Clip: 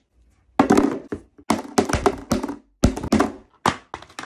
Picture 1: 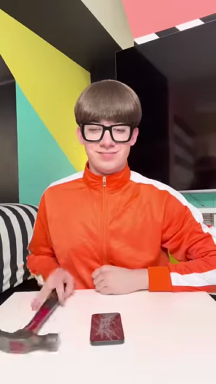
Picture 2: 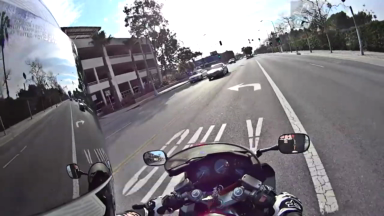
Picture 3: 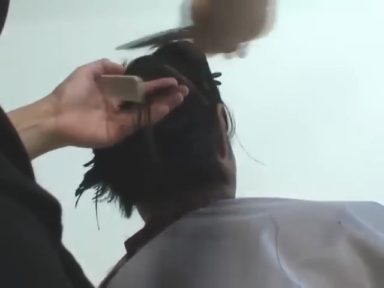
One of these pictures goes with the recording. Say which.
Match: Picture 1